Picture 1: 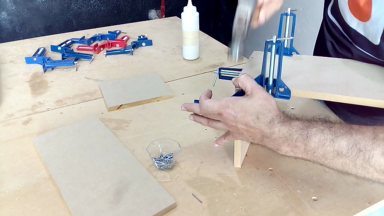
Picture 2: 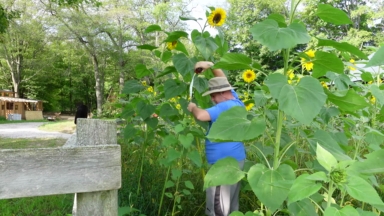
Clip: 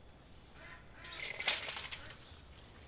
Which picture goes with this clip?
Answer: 2